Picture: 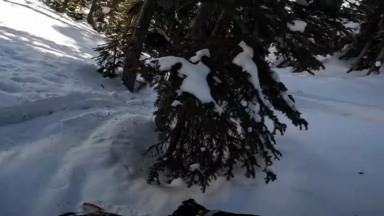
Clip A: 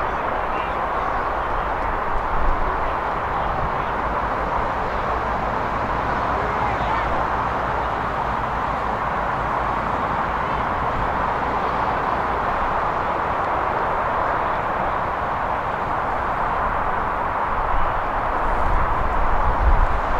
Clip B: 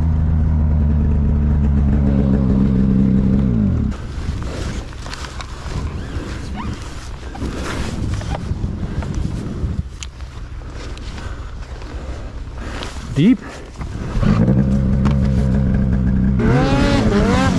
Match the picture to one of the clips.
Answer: B